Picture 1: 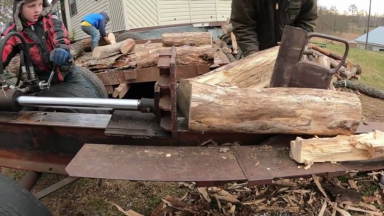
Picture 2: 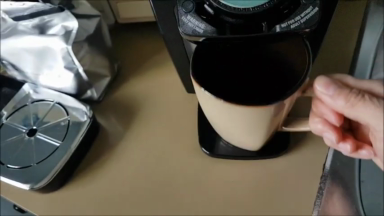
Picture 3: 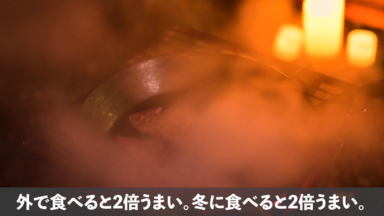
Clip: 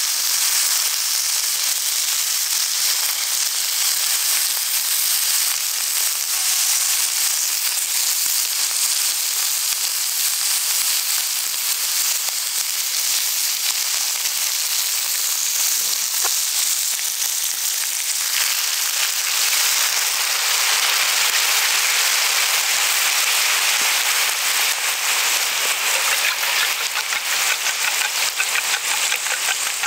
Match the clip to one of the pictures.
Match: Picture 3